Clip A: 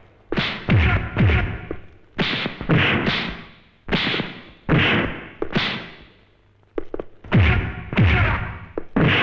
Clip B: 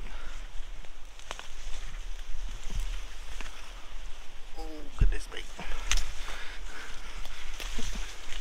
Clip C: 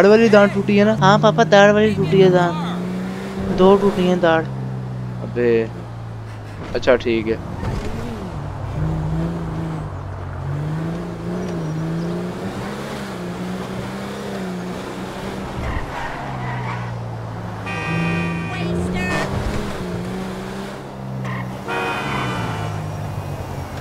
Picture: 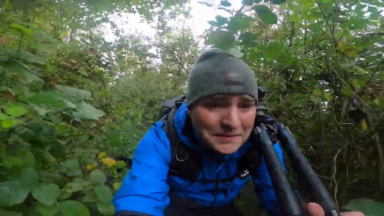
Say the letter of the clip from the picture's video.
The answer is B